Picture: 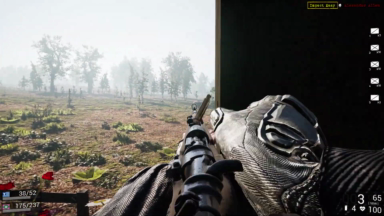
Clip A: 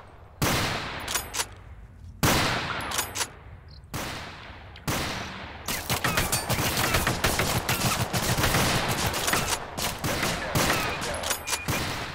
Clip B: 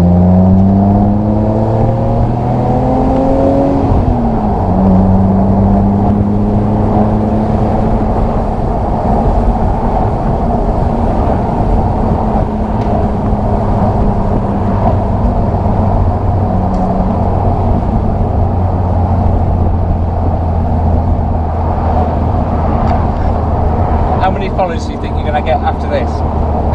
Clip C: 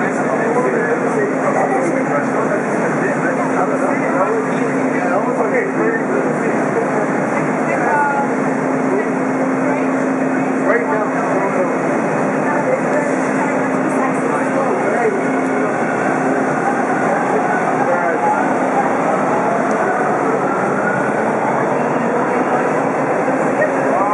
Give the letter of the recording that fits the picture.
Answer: A